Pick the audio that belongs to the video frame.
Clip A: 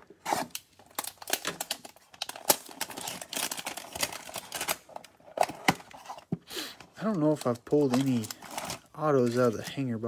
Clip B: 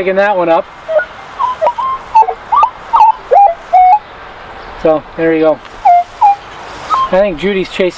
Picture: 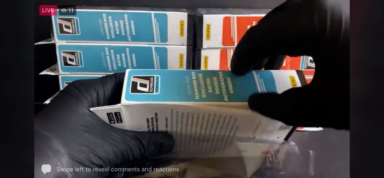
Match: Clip A